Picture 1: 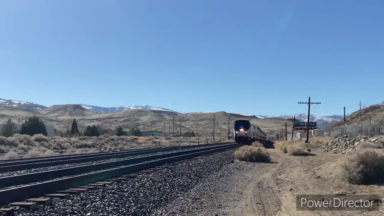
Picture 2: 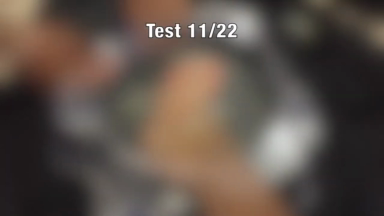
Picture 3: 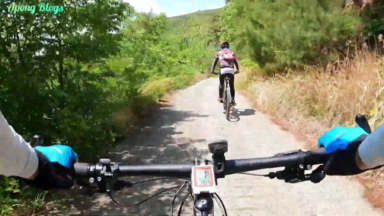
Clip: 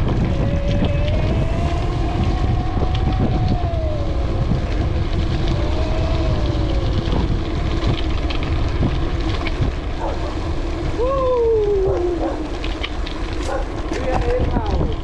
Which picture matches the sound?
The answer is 3